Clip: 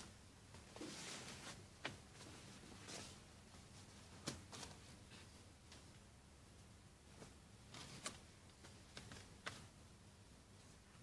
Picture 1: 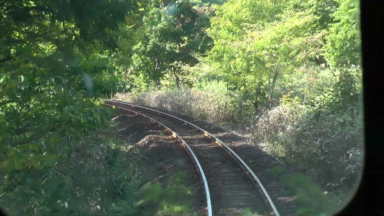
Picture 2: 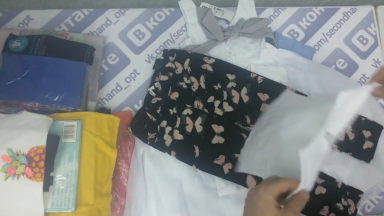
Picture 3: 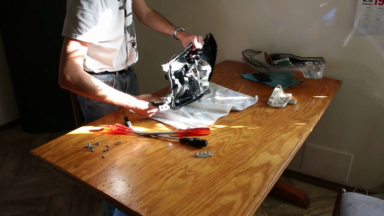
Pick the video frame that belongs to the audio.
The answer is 2